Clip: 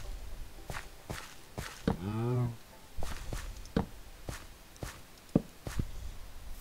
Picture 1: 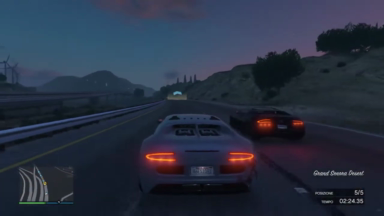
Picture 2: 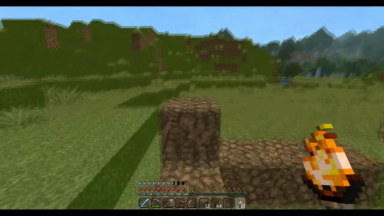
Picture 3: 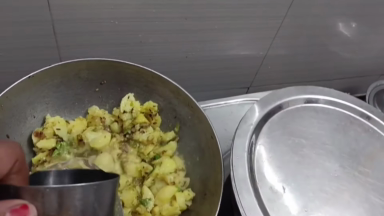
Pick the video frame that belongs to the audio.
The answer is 2